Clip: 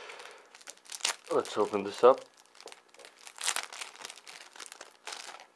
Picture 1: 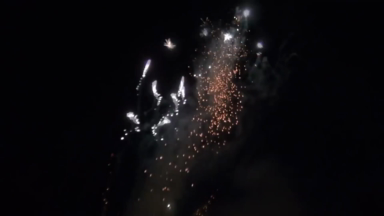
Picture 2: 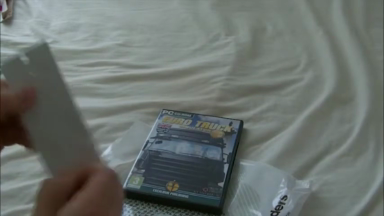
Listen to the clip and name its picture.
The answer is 2